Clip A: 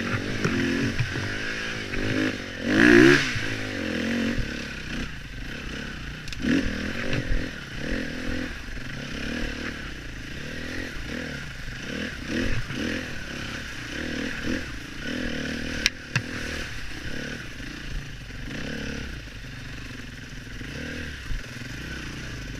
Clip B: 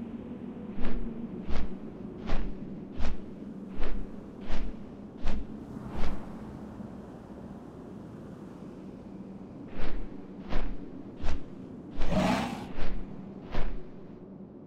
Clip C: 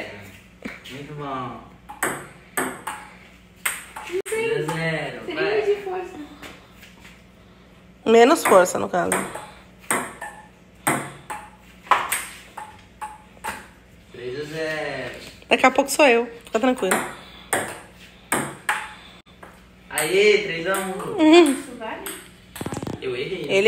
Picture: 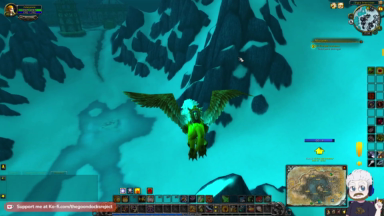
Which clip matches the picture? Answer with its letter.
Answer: B